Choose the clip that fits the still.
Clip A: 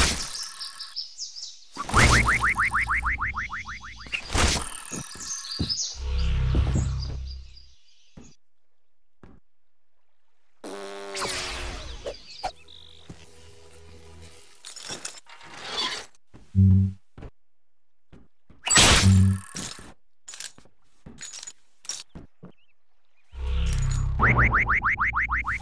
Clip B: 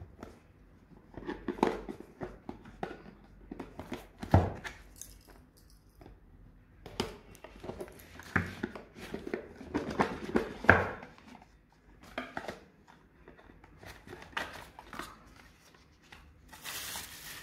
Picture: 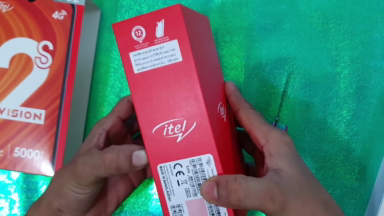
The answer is B